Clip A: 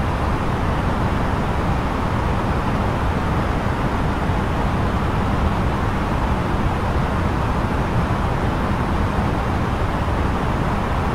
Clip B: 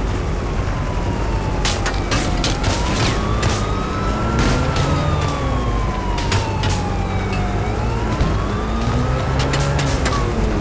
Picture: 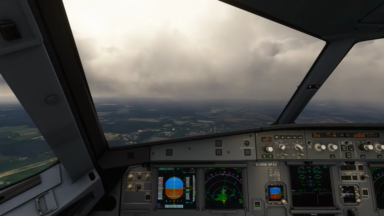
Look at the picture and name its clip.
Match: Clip A